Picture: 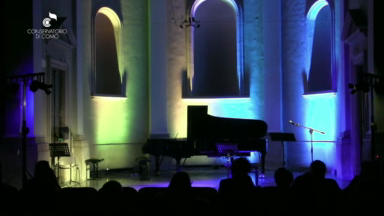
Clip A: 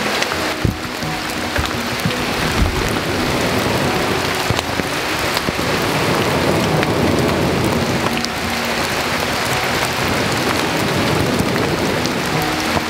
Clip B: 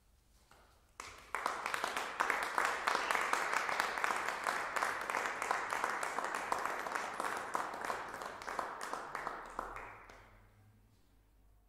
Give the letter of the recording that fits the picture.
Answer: B